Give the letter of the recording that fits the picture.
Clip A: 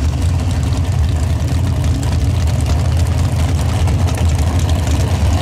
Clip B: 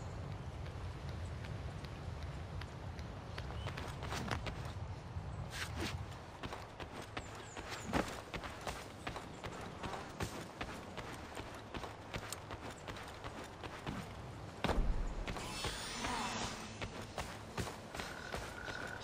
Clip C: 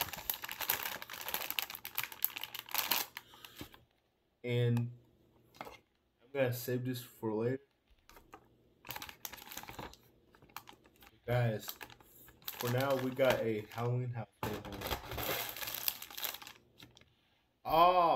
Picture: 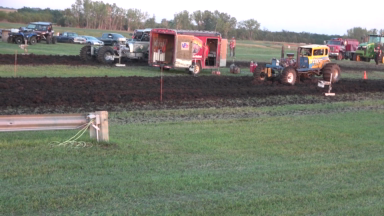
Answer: A